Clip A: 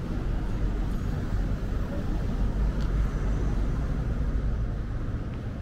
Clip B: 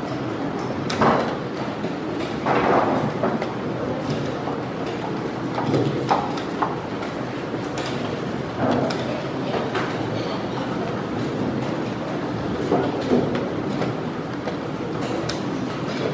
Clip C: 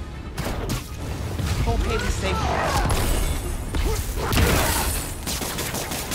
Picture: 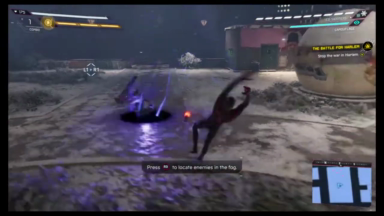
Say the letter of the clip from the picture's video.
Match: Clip C